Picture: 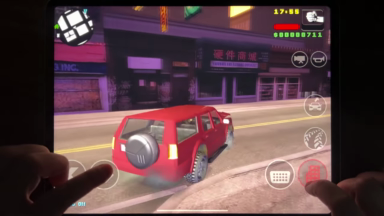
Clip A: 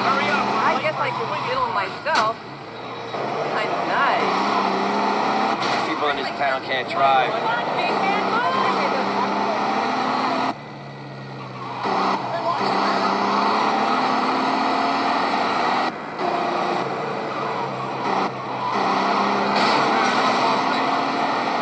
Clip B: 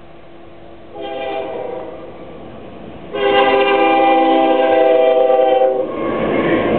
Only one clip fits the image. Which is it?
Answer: A